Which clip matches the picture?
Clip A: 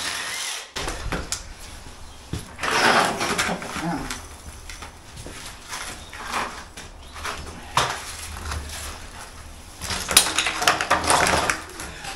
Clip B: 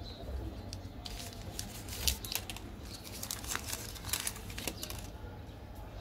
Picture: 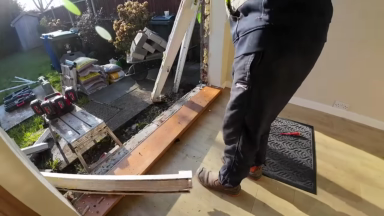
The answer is A